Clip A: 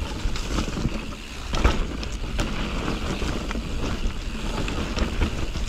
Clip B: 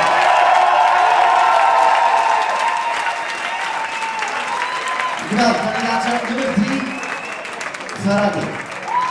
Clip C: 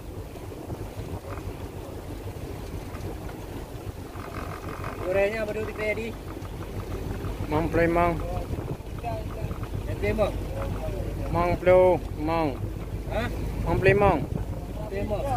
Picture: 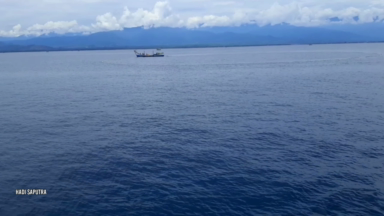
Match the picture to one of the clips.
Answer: C